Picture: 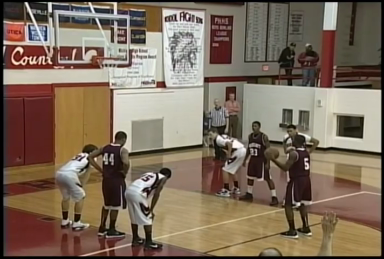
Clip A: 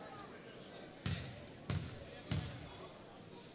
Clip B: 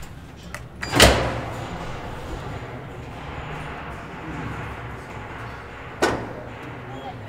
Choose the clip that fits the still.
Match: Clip A